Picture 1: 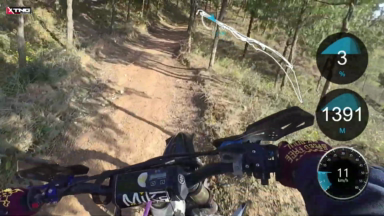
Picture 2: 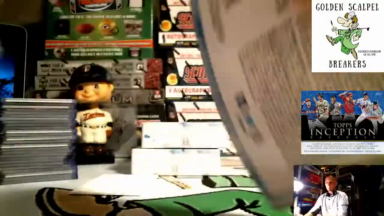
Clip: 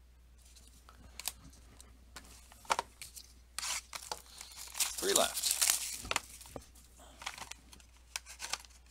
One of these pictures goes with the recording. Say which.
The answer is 2